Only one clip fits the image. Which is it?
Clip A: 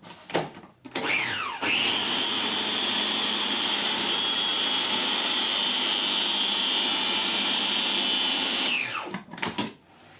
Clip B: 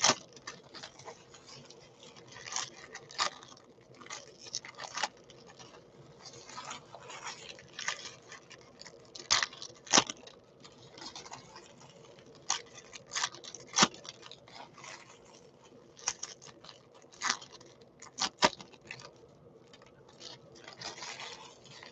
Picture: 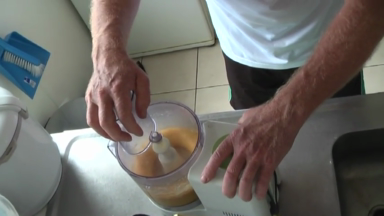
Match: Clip A